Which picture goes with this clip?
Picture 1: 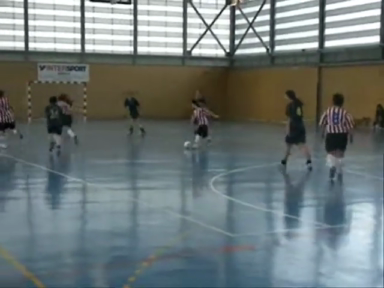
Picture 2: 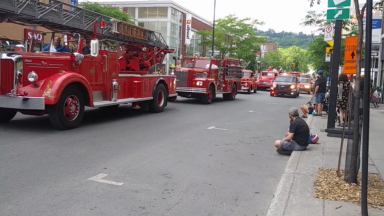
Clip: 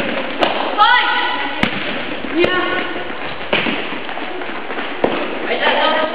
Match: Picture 1